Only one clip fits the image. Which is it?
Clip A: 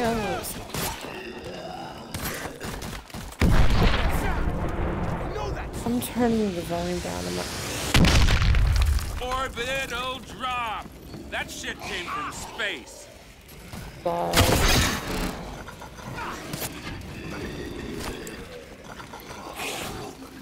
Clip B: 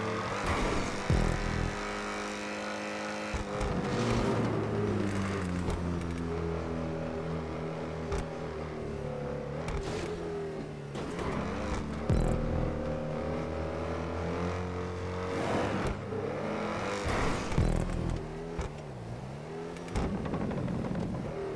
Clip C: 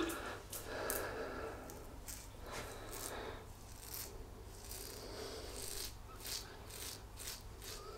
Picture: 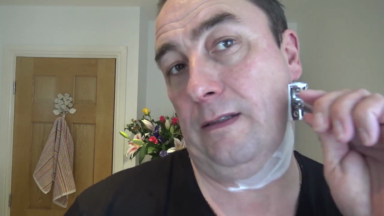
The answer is C